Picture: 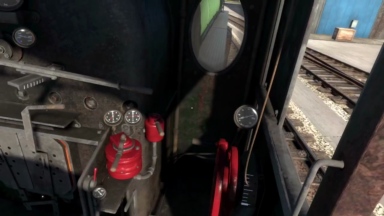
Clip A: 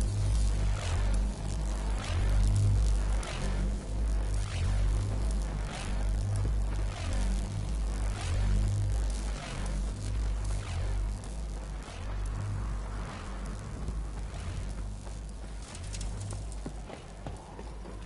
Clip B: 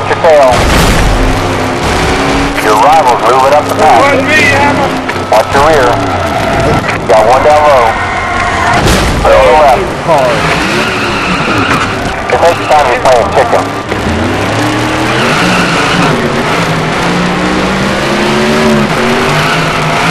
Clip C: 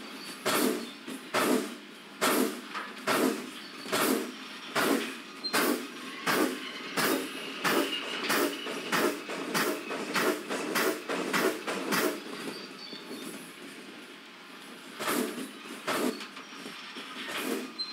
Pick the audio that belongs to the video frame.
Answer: C